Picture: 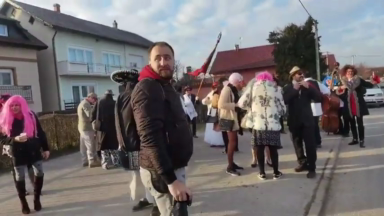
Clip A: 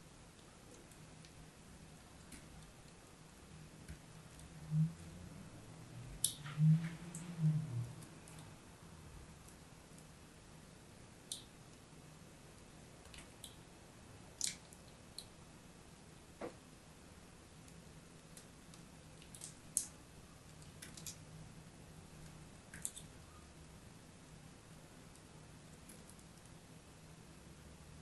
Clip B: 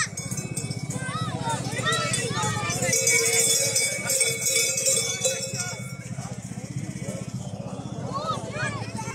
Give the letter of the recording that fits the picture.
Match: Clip B